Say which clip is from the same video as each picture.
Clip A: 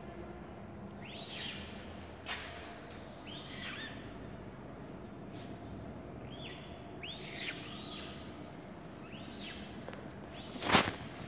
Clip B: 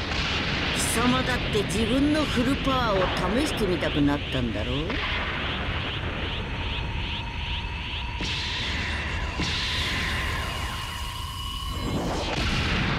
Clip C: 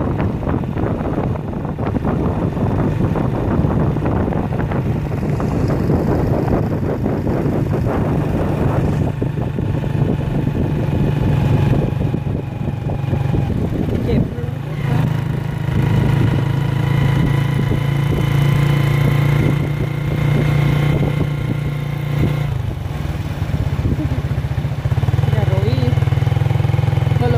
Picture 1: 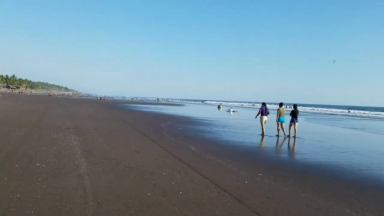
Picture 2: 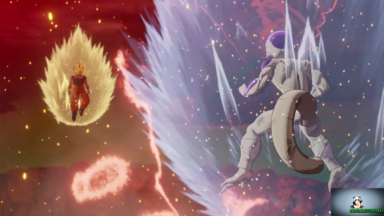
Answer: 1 C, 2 B